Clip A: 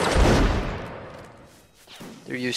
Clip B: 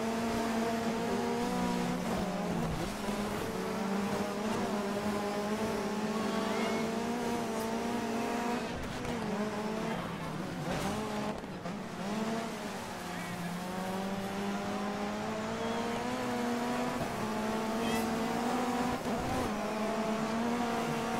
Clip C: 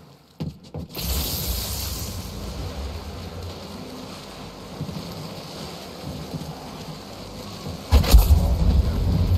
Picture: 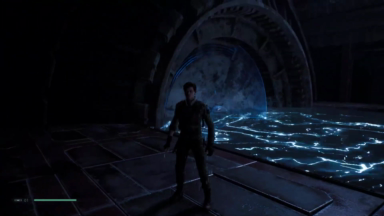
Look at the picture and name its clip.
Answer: C